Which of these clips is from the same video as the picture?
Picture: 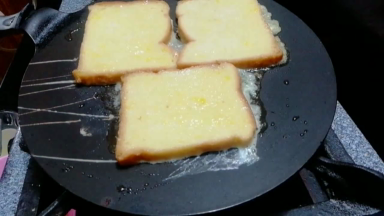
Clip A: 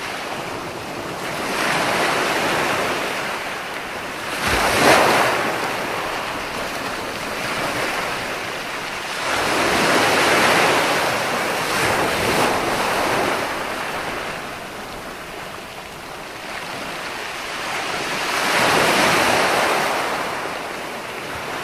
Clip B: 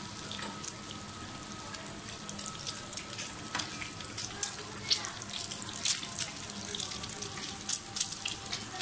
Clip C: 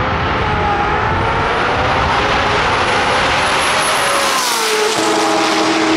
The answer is B